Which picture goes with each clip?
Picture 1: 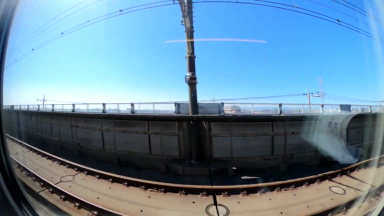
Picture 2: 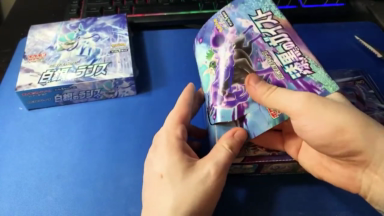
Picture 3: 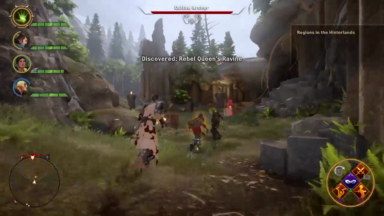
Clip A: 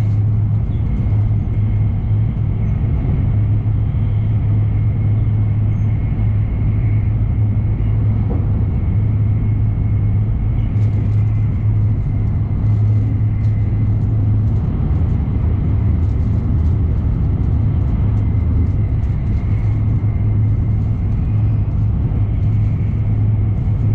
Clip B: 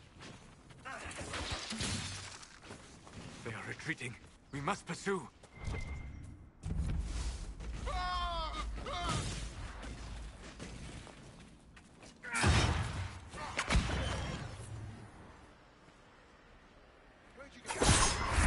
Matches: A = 1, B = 3